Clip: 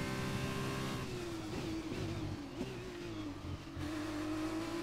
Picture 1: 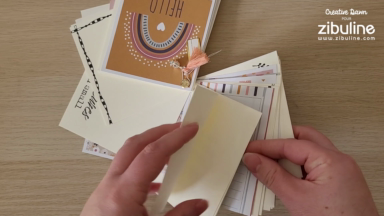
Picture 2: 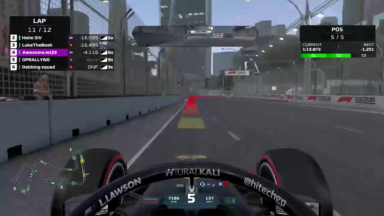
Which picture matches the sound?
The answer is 2